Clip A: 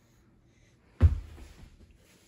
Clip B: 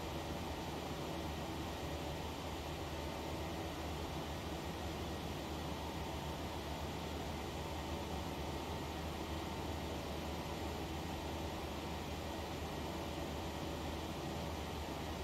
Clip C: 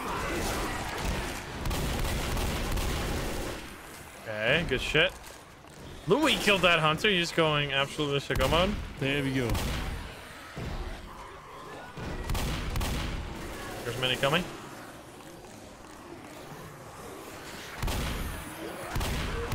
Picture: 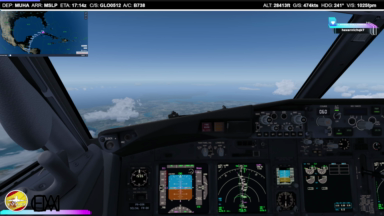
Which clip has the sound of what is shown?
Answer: B